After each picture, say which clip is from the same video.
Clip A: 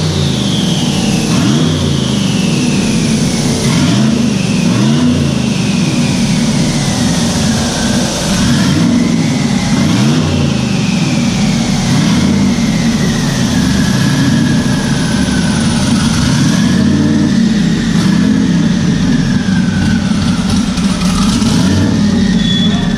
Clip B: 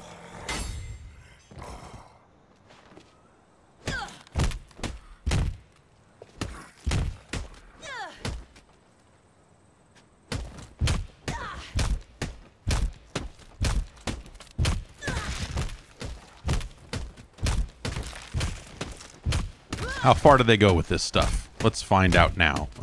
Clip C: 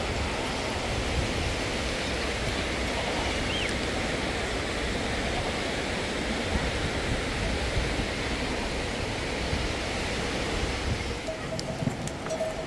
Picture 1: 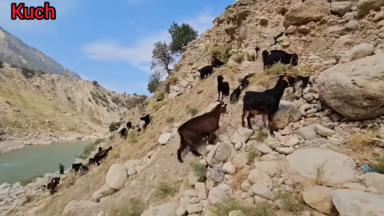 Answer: C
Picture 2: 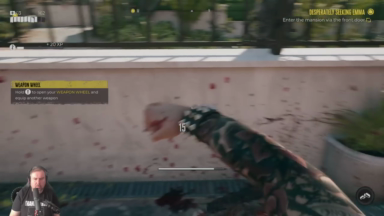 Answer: B